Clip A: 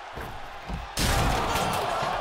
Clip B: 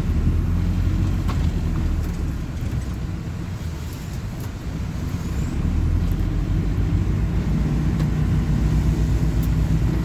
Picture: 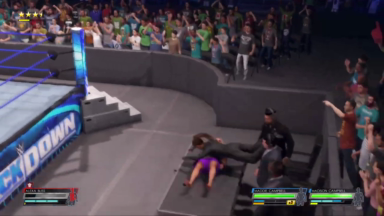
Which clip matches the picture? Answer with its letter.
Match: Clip A